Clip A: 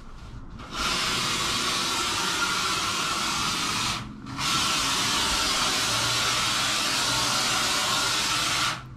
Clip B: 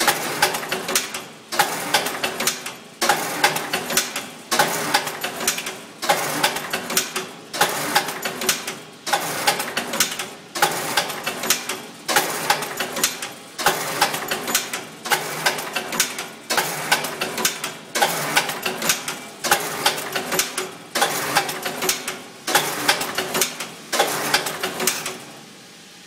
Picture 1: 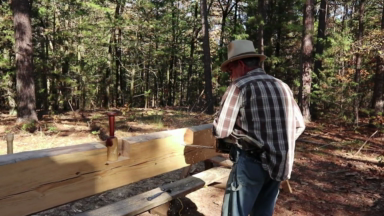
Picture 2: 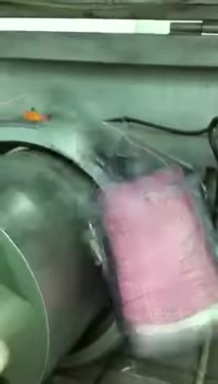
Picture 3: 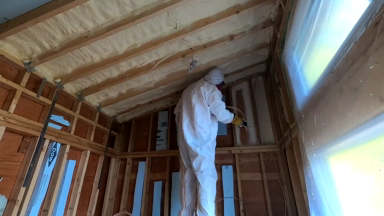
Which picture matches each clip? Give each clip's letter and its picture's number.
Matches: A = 3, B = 2